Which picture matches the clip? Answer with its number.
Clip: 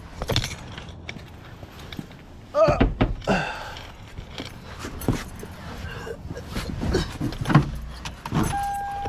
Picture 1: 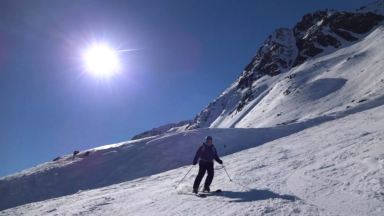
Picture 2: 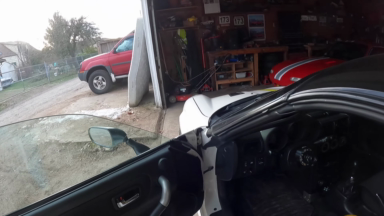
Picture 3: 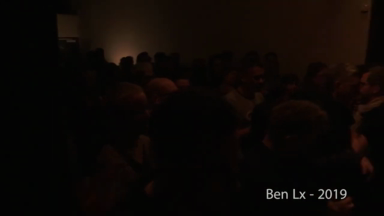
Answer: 2